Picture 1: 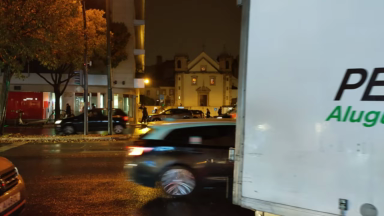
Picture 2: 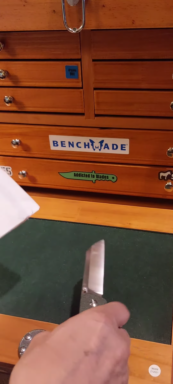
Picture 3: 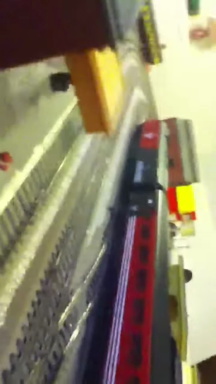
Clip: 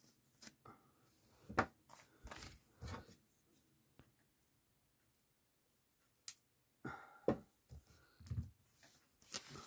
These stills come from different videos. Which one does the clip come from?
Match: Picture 2